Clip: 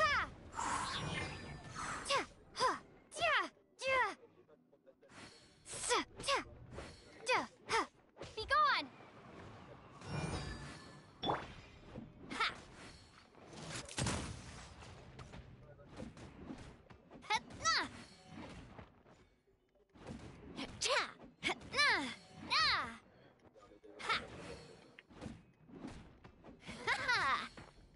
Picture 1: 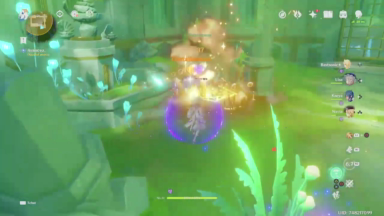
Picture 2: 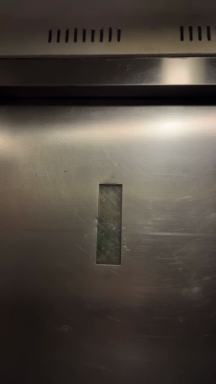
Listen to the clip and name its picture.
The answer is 1